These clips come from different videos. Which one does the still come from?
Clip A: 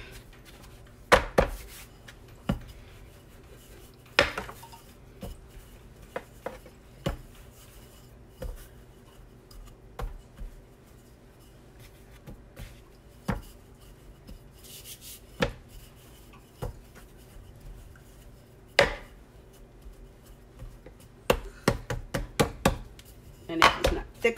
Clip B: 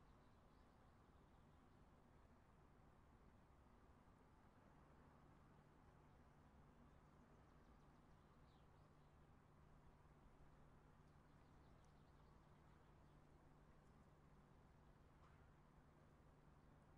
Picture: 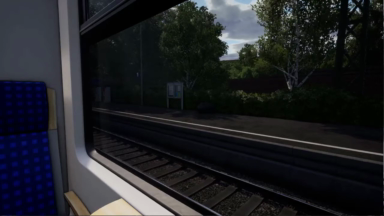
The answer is B